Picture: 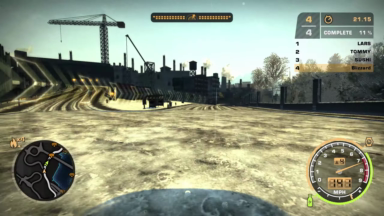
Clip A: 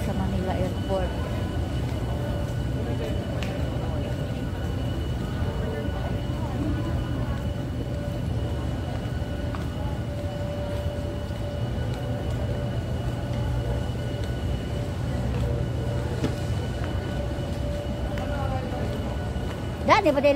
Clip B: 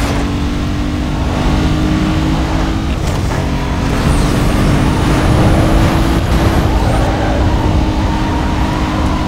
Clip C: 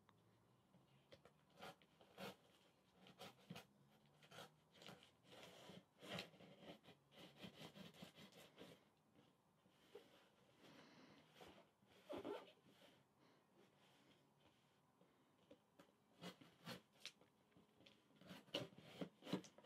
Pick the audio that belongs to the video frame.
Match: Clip B